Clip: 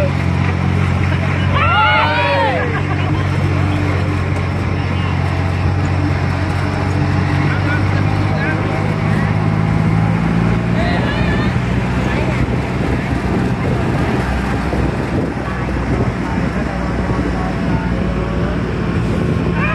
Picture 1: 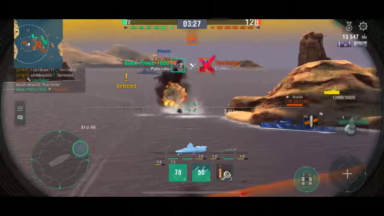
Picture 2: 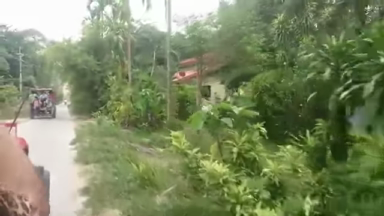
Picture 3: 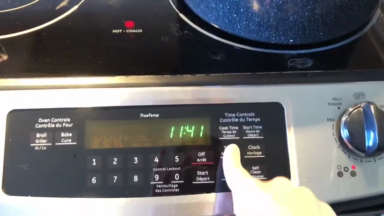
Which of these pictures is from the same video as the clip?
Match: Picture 2